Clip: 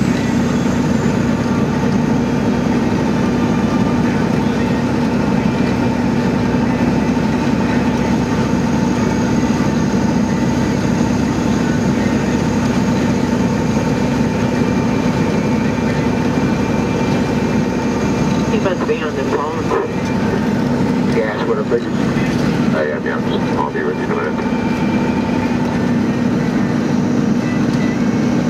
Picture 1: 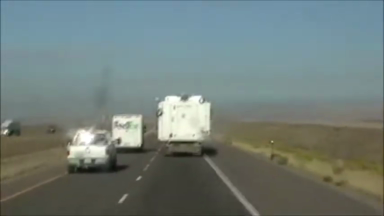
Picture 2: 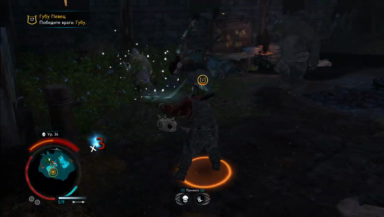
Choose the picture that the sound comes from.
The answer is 1